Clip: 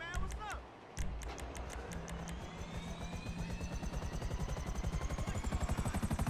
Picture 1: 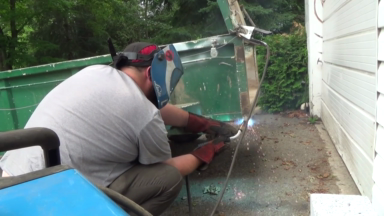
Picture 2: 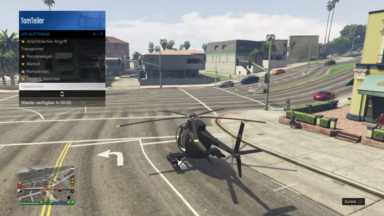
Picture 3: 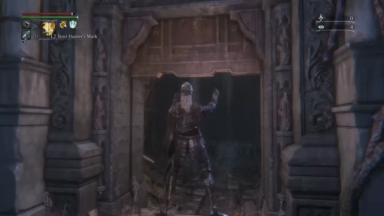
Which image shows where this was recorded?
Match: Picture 2